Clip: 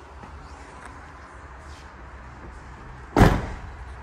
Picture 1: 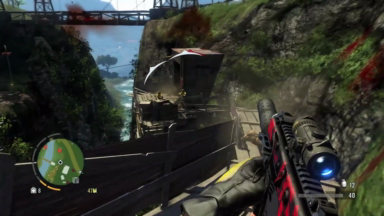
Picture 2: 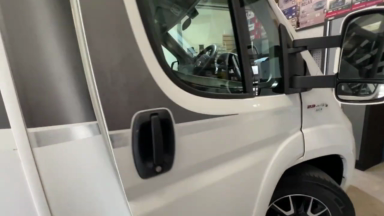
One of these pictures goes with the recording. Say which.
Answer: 2